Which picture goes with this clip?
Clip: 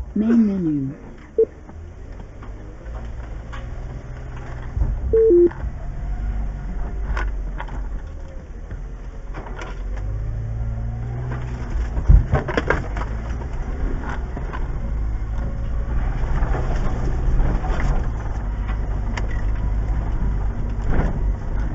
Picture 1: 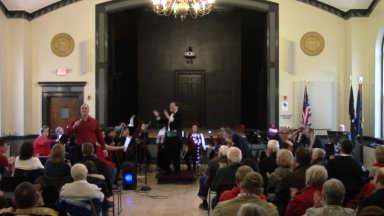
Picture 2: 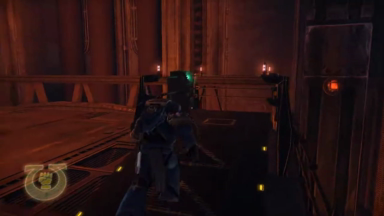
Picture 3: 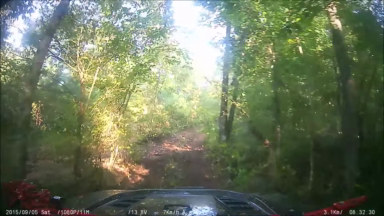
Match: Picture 3